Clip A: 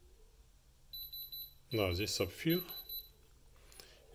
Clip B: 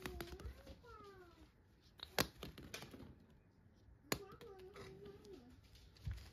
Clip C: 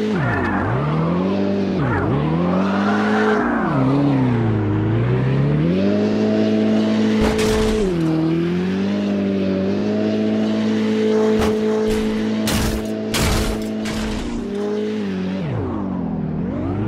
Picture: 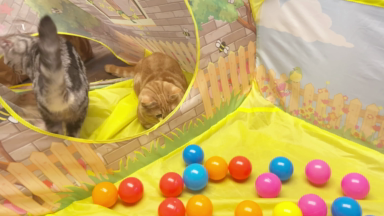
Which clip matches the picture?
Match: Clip B